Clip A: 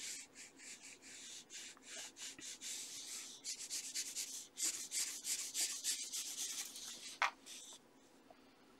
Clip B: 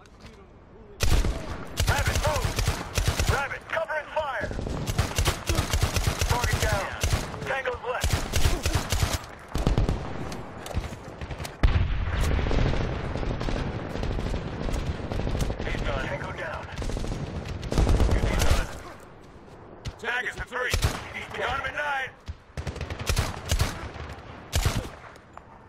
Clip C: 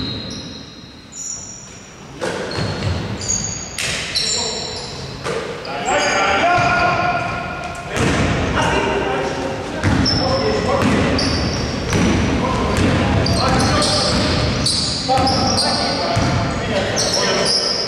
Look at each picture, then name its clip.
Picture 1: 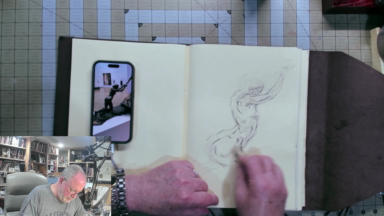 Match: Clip A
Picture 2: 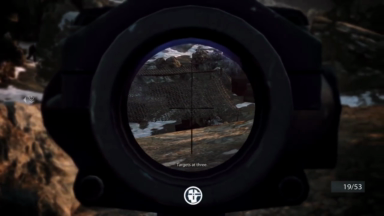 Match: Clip B